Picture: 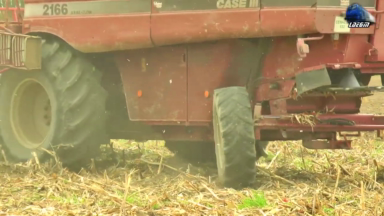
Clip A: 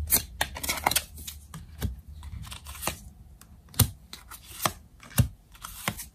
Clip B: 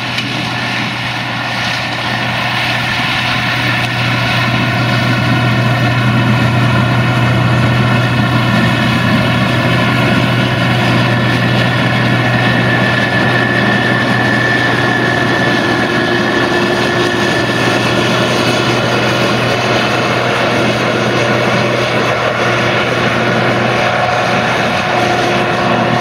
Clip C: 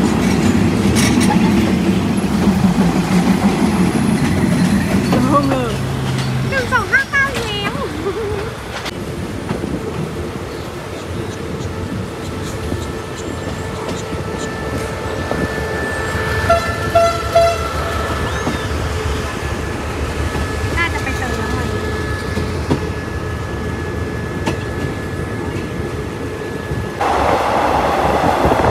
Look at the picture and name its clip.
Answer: B